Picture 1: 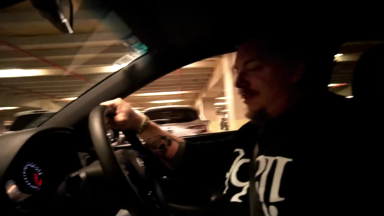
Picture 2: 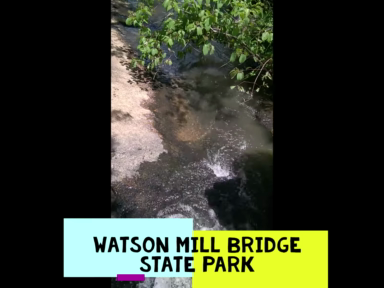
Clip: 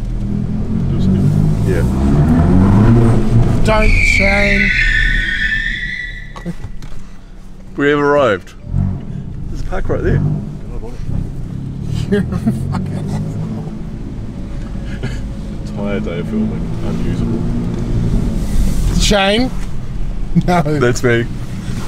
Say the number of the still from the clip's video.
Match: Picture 1